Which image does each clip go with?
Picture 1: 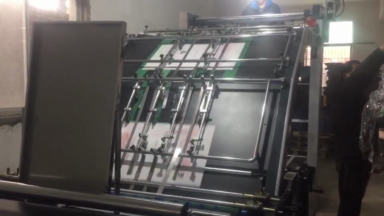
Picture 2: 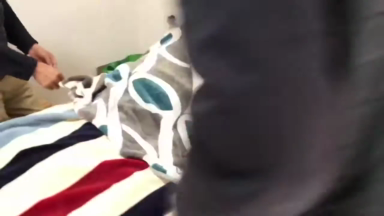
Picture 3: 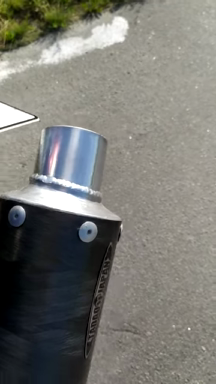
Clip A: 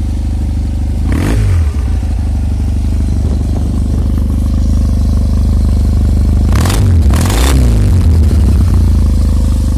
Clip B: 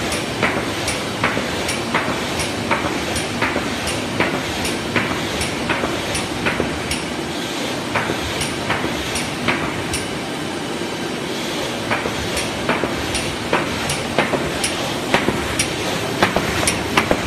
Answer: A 3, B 1